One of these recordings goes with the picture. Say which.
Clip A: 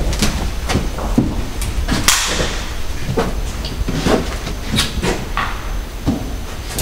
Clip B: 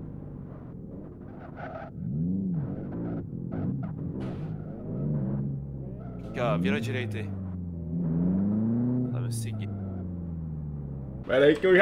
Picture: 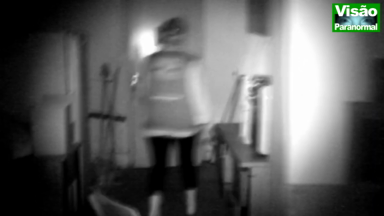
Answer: A